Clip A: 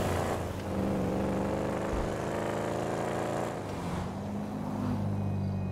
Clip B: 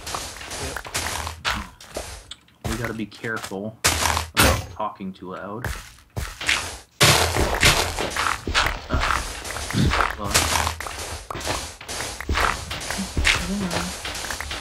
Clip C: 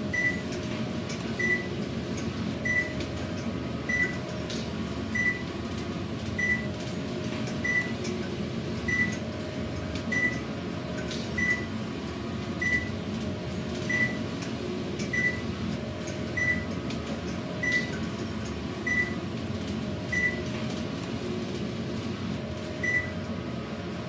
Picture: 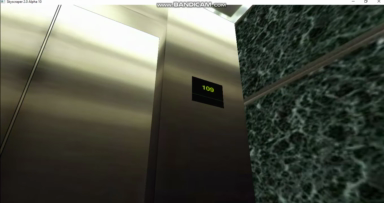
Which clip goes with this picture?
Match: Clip C